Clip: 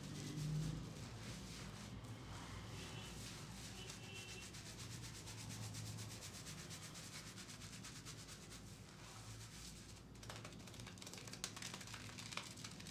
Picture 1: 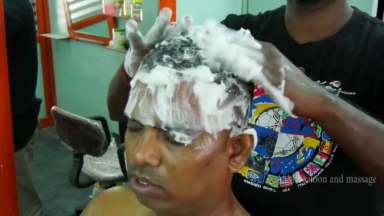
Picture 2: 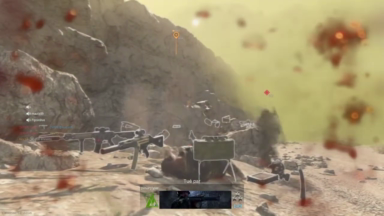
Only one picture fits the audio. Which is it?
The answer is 1